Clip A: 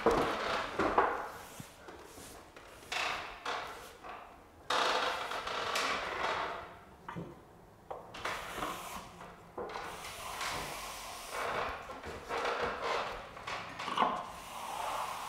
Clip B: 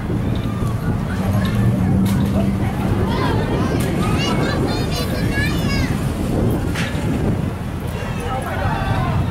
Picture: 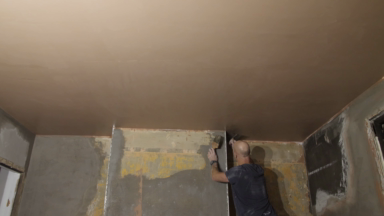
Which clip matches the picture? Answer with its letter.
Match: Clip A